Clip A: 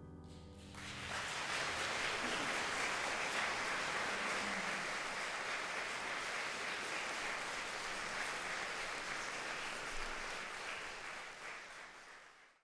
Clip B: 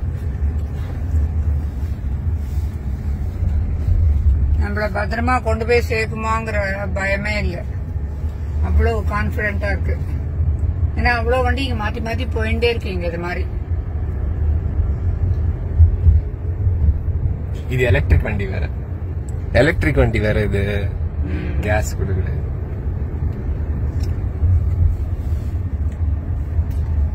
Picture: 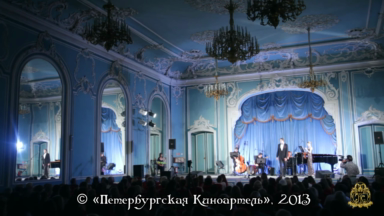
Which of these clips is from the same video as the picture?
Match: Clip A